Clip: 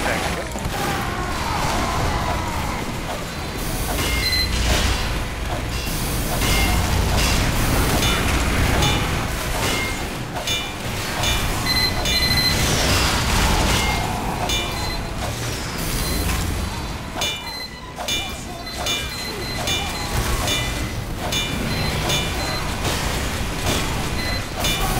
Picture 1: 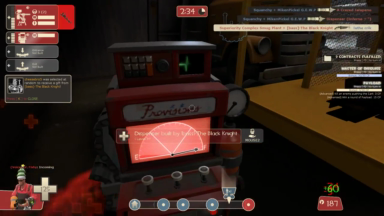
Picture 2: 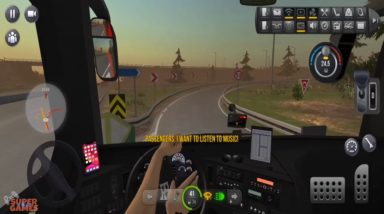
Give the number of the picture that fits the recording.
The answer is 1